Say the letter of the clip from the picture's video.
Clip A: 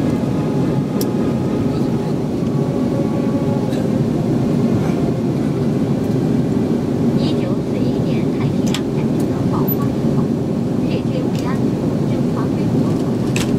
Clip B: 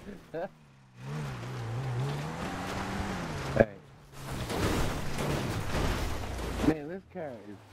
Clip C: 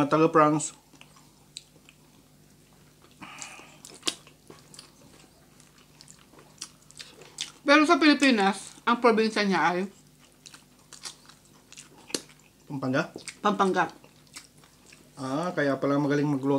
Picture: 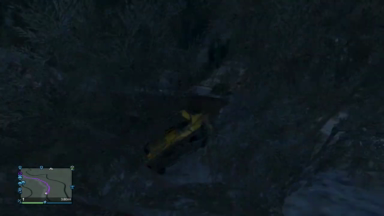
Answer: B